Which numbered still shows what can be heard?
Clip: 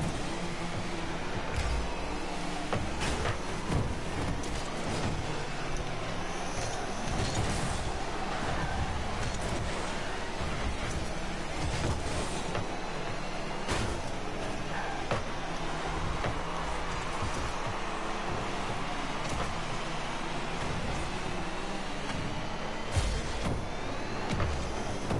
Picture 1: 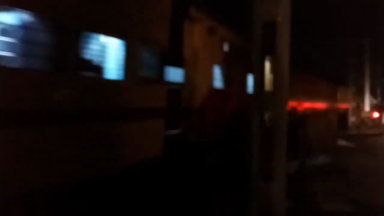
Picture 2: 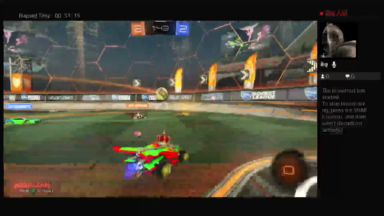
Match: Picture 2